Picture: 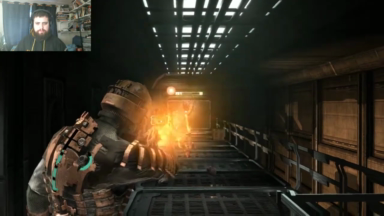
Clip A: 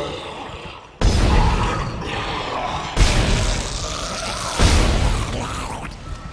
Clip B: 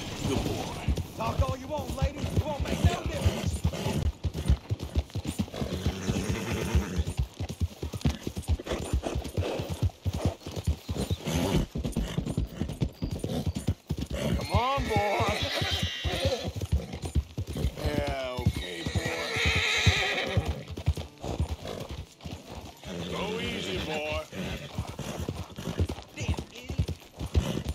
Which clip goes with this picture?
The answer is A